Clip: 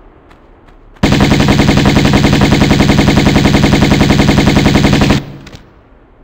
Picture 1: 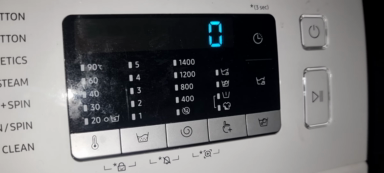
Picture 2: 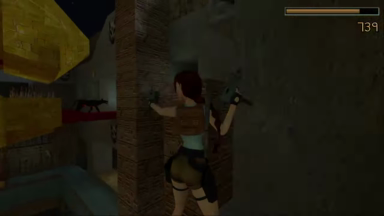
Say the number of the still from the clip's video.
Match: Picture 2